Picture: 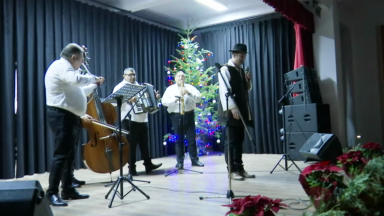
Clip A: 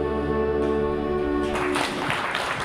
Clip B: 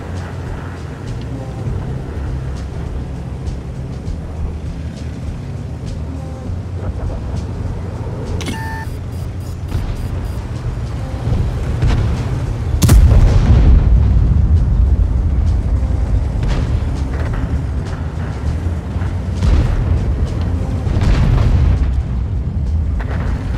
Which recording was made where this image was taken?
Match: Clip A